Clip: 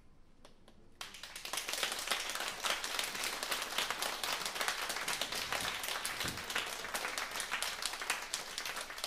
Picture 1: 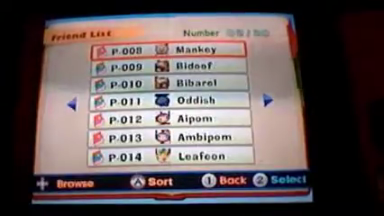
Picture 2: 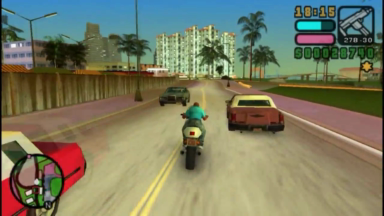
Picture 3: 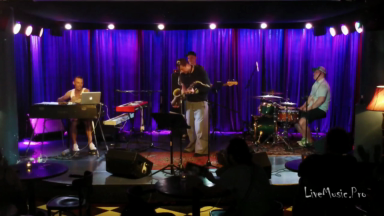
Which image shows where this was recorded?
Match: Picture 3